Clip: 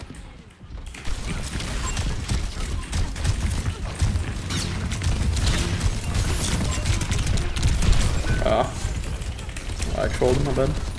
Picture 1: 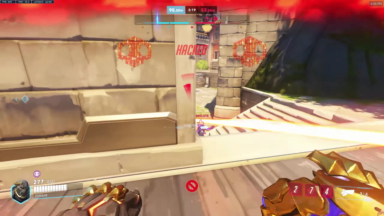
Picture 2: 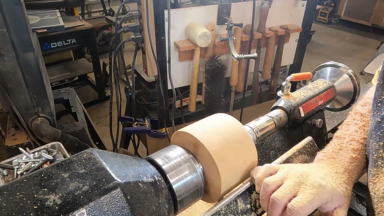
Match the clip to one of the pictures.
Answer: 1